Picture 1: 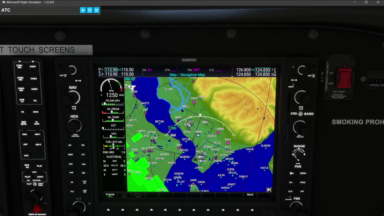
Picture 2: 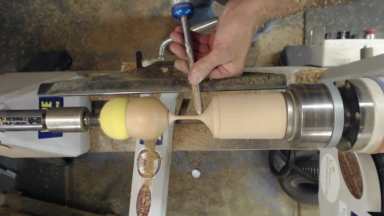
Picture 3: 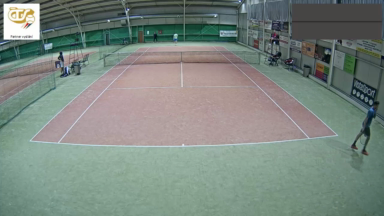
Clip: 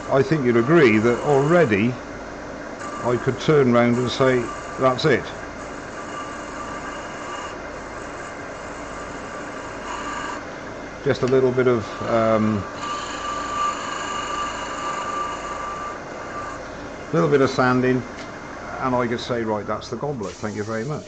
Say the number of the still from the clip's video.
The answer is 2